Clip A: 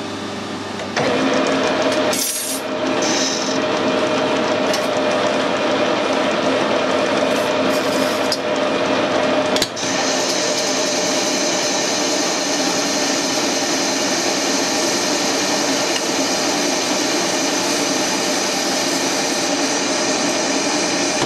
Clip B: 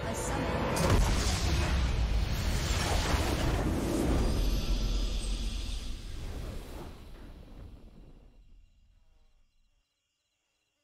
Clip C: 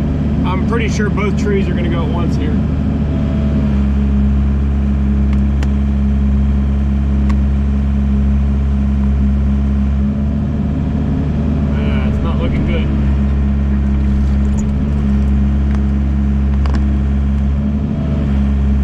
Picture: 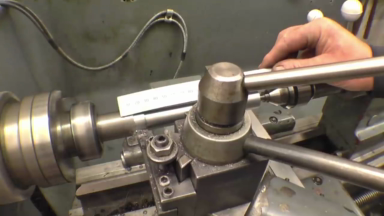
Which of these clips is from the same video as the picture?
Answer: A